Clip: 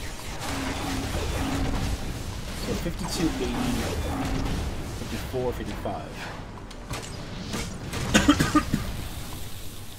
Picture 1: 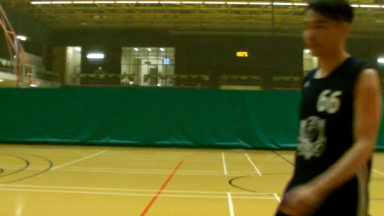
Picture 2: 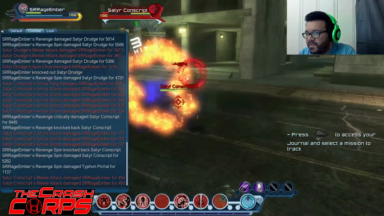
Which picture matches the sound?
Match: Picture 2